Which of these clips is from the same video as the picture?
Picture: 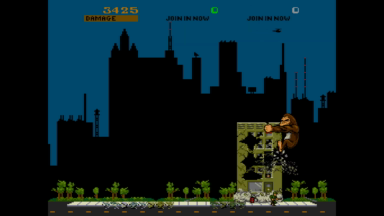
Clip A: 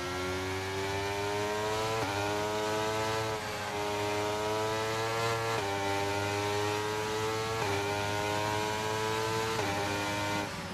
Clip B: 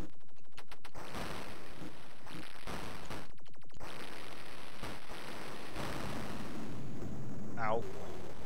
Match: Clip B